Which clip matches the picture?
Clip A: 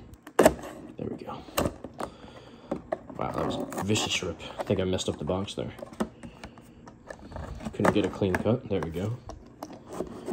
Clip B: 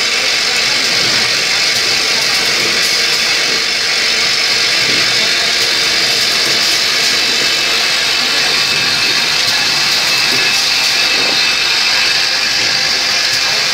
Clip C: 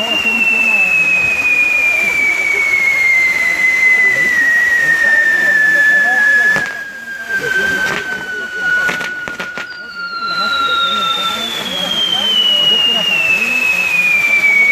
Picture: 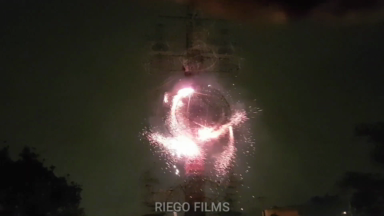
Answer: C